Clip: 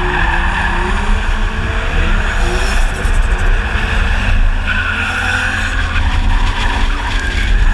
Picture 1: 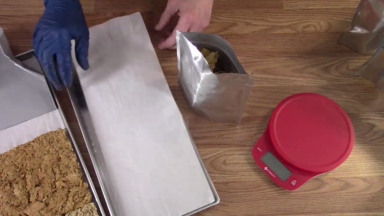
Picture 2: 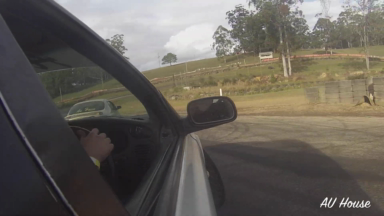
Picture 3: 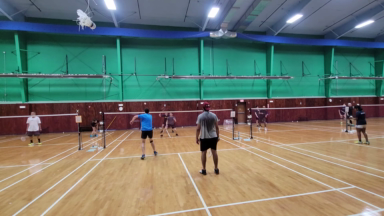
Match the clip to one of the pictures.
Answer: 2